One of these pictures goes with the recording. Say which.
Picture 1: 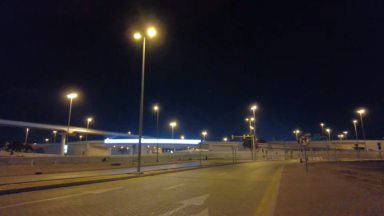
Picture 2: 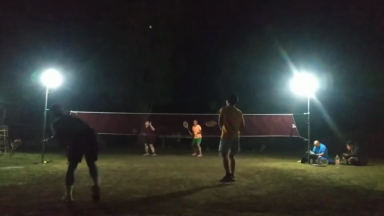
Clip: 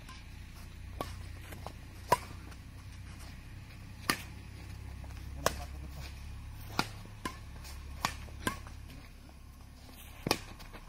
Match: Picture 2